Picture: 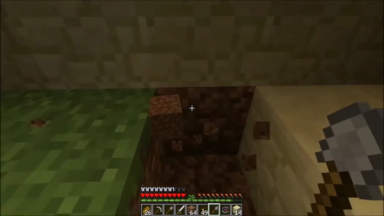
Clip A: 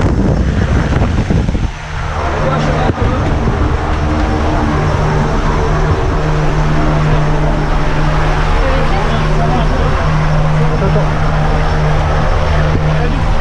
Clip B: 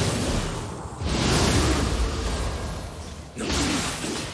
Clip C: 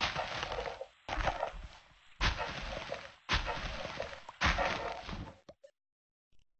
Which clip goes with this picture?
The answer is C